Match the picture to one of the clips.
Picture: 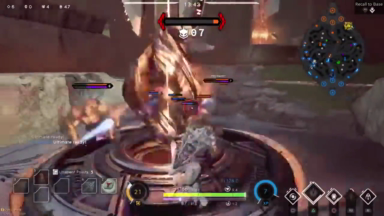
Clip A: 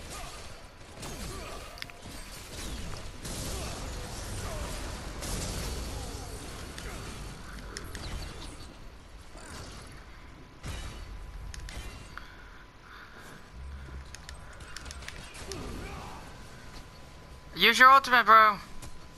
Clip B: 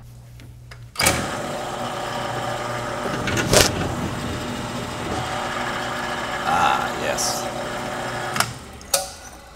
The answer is A